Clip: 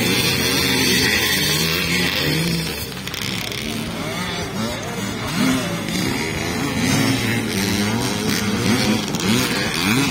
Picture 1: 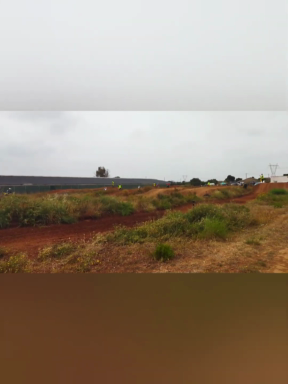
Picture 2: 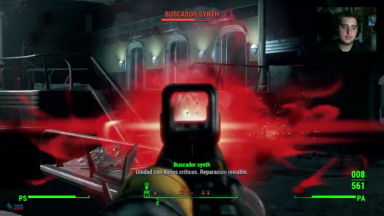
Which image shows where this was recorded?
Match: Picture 1